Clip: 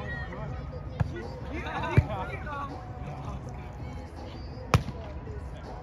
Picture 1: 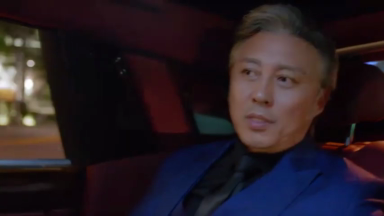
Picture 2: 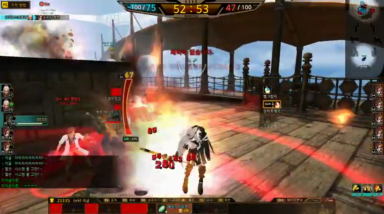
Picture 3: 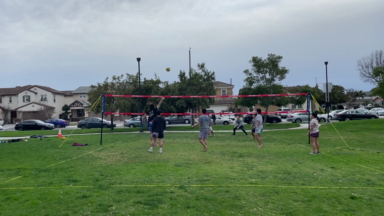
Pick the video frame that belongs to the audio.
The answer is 3